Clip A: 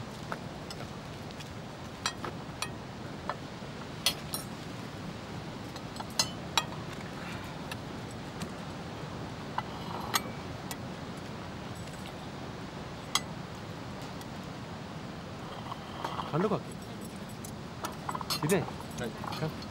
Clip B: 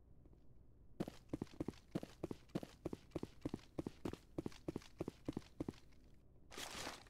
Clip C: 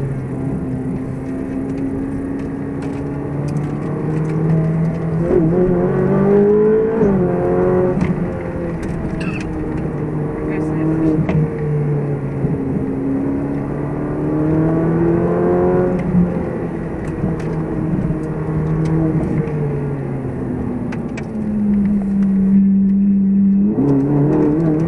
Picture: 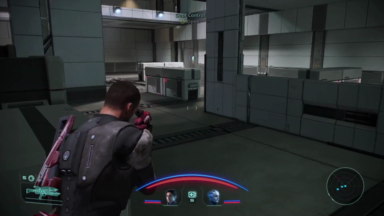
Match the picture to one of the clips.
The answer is B